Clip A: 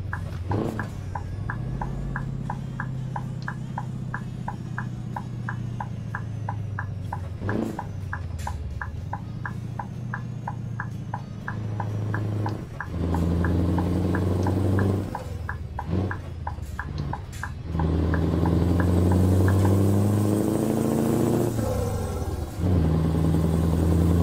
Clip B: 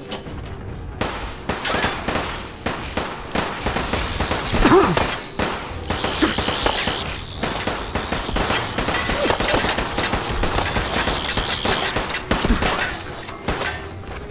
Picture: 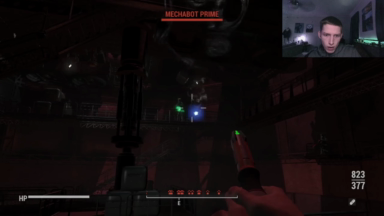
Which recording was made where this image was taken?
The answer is B